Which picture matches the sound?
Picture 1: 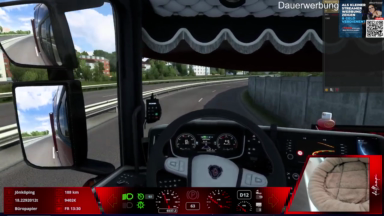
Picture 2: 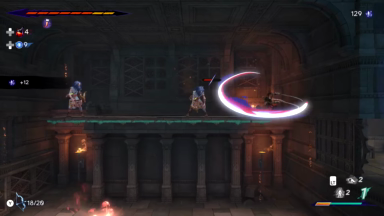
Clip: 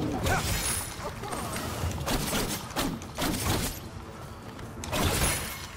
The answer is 2